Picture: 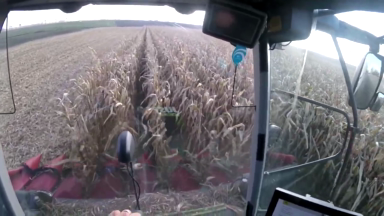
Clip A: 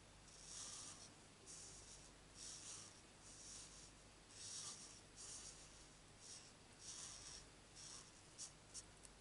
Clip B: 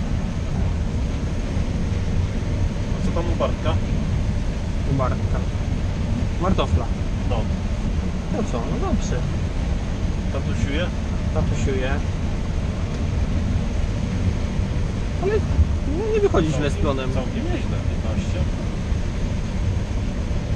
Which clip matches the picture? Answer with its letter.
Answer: B